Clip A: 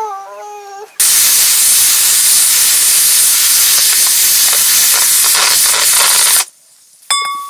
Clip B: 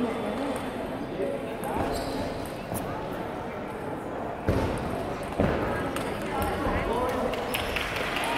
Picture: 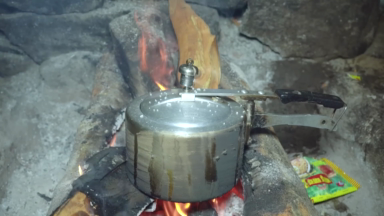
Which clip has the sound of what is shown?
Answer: A